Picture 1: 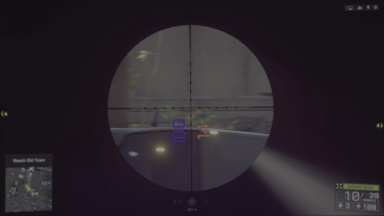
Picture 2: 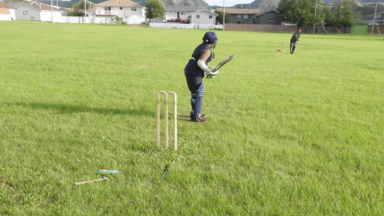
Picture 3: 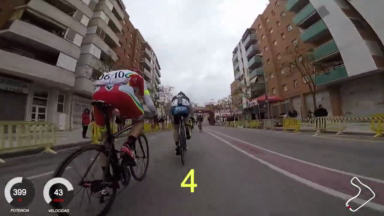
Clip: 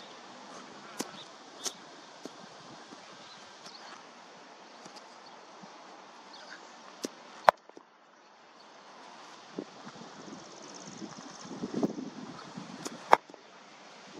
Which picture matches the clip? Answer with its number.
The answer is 2